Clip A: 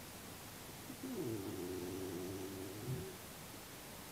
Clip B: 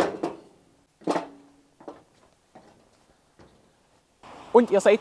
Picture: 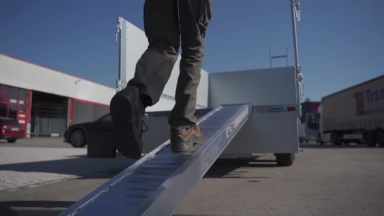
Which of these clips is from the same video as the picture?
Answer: B